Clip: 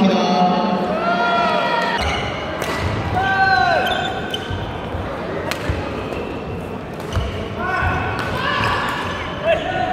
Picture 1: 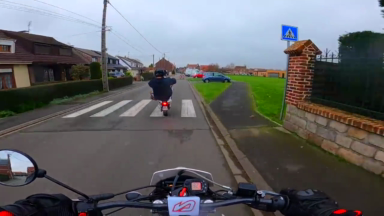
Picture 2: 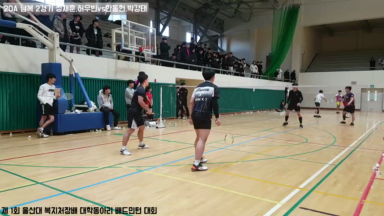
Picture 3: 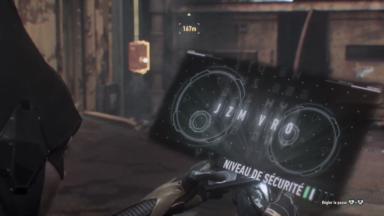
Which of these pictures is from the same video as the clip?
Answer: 2